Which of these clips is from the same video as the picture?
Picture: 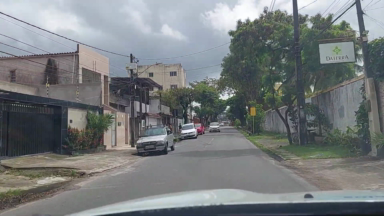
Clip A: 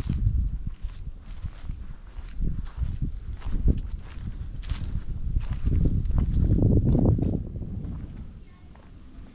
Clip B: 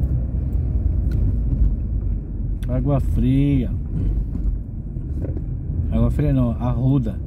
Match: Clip B